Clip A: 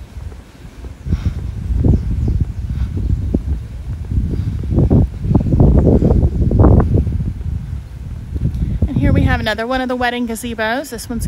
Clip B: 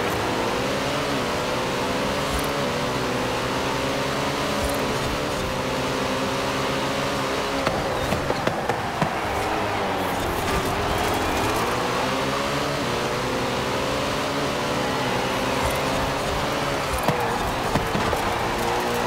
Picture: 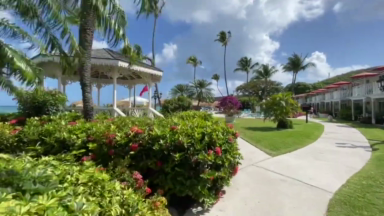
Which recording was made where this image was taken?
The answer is A